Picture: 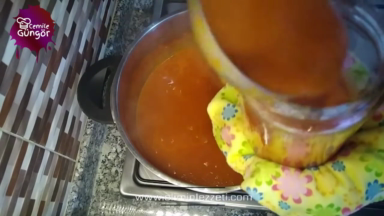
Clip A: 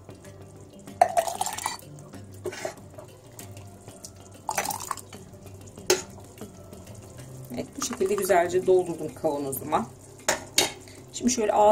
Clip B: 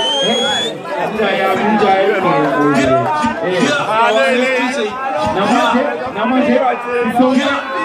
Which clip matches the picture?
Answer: A